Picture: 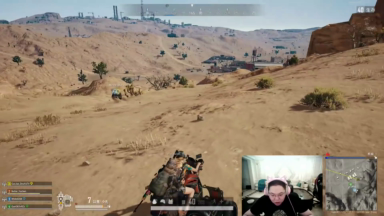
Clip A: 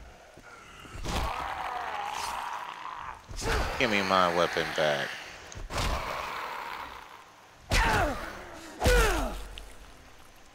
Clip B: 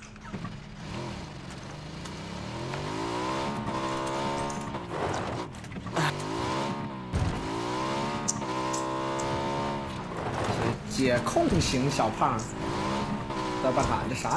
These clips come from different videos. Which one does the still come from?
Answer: B